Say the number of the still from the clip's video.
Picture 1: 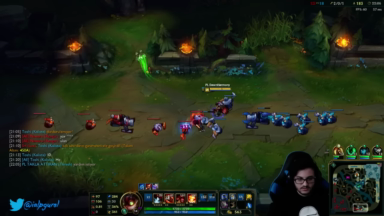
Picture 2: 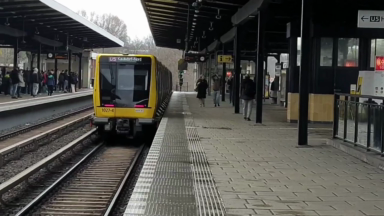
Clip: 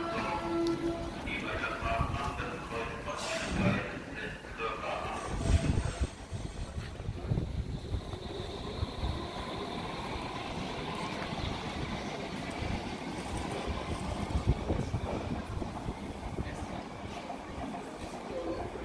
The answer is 2